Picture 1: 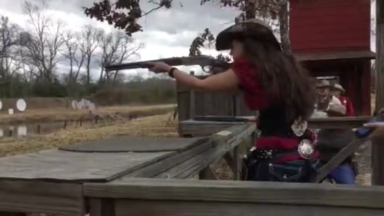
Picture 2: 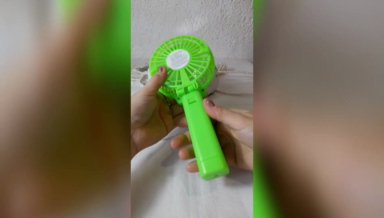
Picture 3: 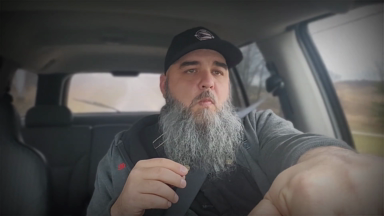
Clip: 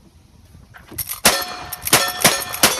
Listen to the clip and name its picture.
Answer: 1